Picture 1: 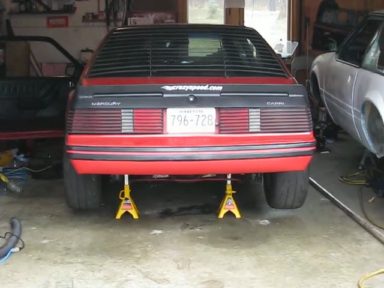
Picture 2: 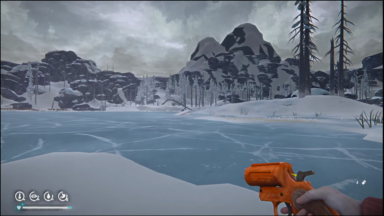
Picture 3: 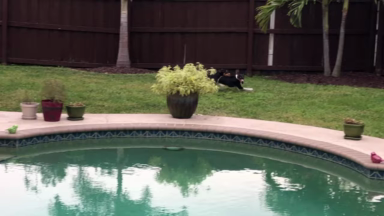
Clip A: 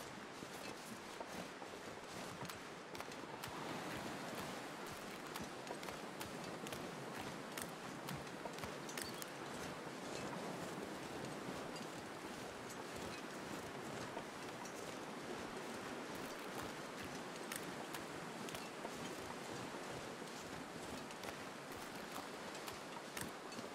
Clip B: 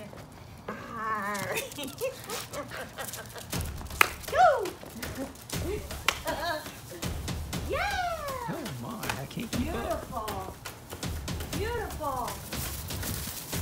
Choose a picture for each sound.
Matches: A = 2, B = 3